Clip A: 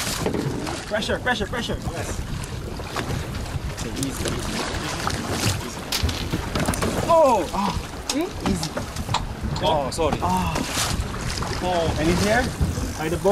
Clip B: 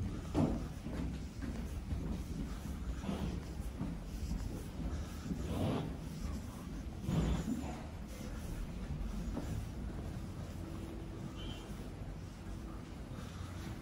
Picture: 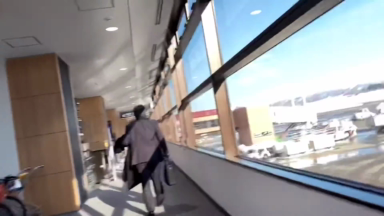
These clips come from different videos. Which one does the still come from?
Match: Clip B